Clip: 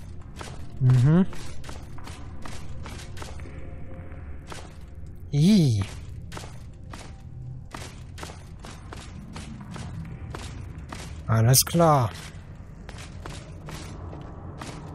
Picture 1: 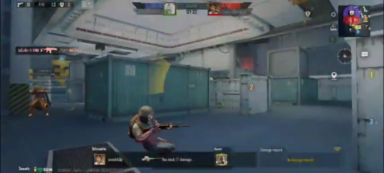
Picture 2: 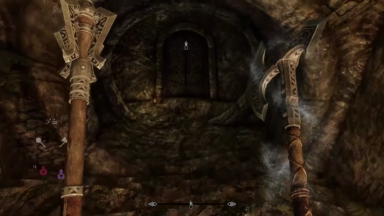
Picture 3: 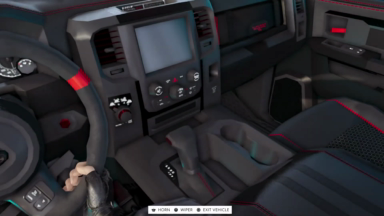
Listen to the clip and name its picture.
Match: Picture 2